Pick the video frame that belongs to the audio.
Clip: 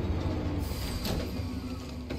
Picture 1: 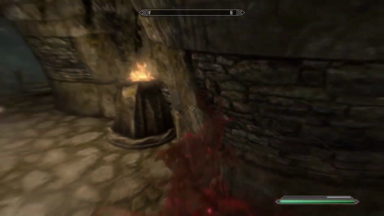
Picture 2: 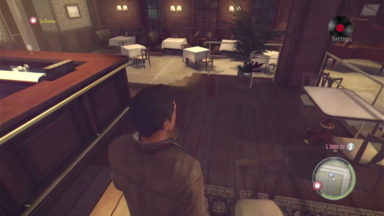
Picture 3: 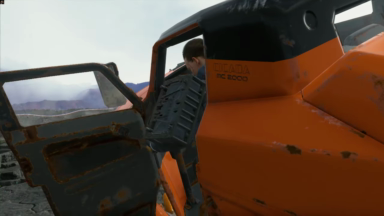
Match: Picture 3